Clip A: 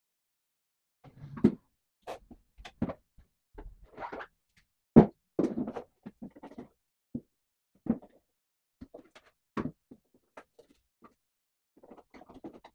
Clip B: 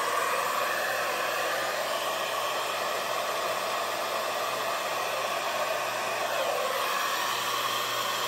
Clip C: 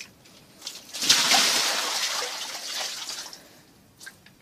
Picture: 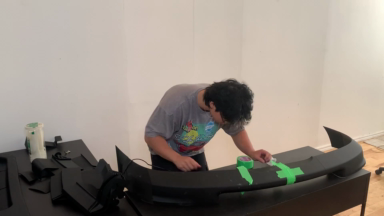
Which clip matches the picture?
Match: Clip A